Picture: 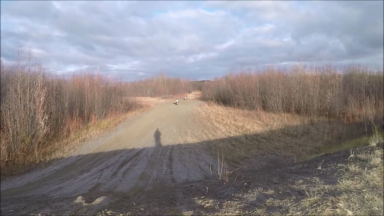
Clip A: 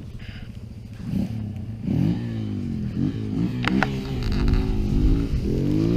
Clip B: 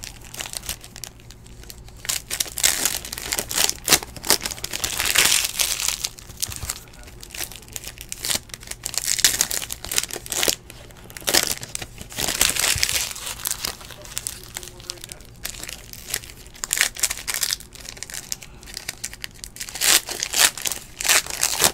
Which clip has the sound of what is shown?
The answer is A